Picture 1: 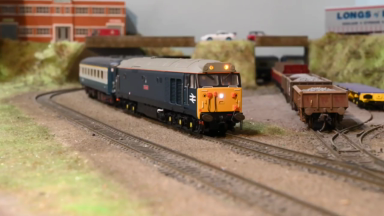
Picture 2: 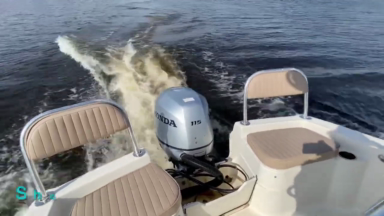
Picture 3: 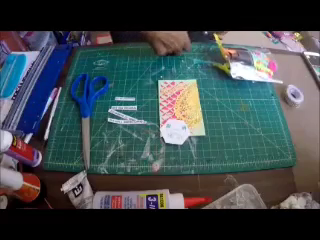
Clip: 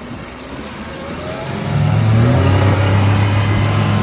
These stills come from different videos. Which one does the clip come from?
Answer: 2